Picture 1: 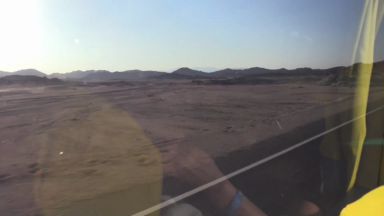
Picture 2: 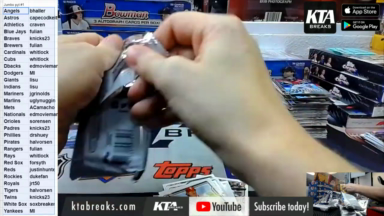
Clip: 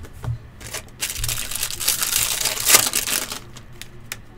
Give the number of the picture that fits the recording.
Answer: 2